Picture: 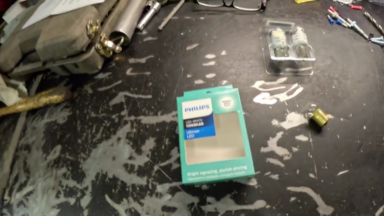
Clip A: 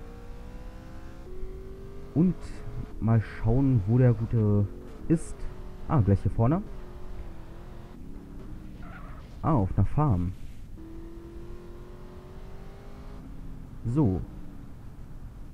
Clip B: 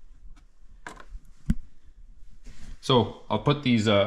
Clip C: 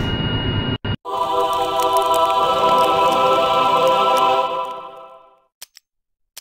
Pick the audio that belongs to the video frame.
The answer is B